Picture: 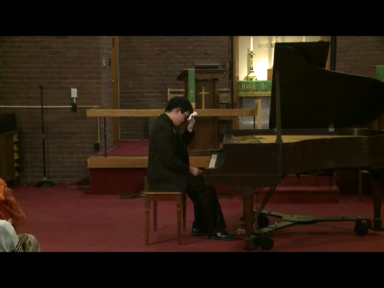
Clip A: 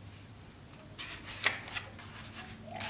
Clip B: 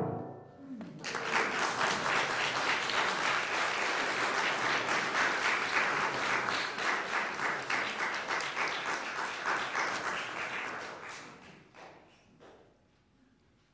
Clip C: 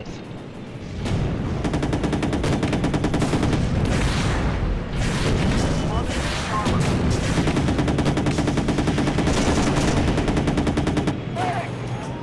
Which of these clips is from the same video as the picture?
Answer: B